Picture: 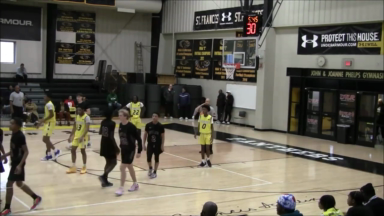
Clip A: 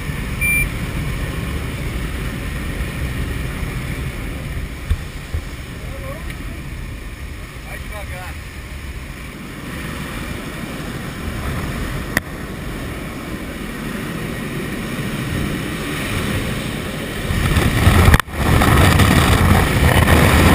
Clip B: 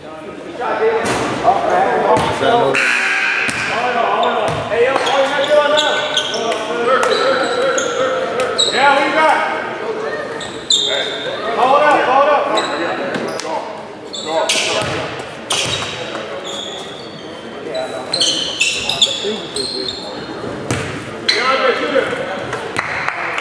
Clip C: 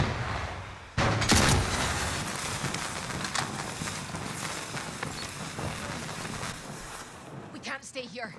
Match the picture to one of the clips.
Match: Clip B